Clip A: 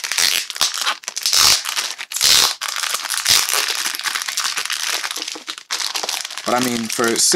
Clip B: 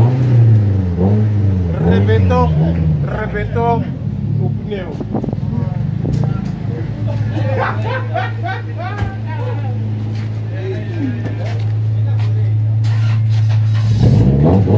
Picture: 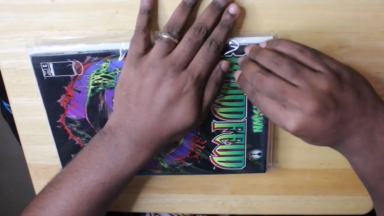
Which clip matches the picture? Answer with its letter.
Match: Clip A